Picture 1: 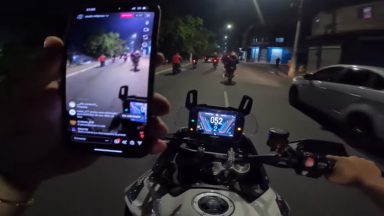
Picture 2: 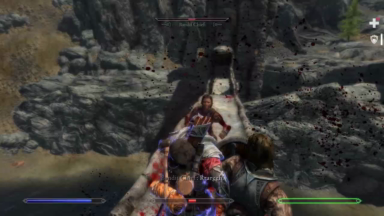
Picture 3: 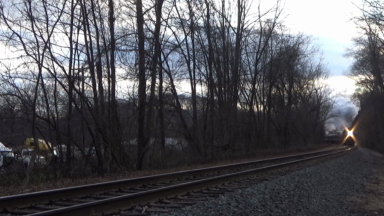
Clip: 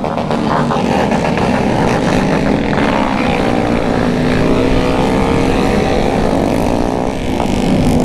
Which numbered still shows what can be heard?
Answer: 1